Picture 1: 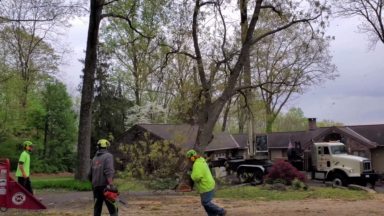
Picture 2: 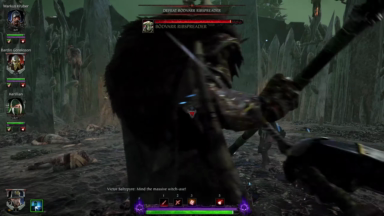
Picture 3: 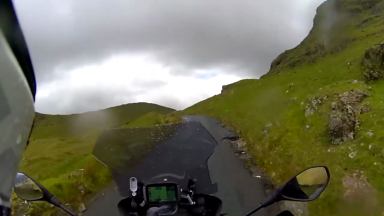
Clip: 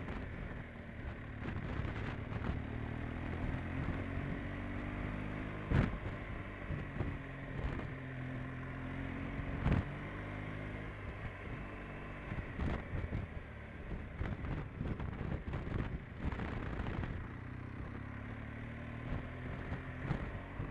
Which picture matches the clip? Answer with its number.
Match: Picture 3